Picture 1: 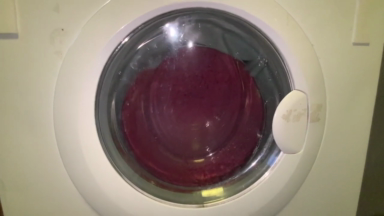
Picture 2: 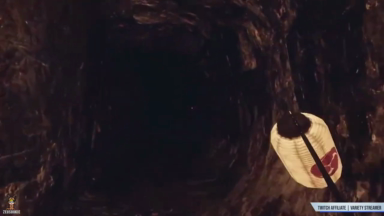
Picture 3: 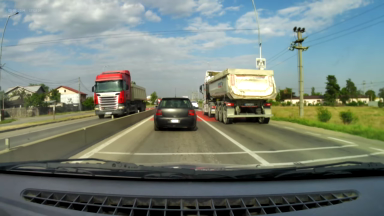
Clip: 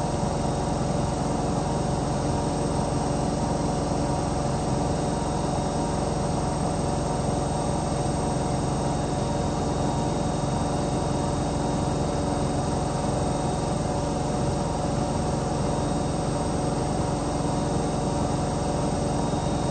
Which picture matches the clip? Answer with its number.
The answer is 1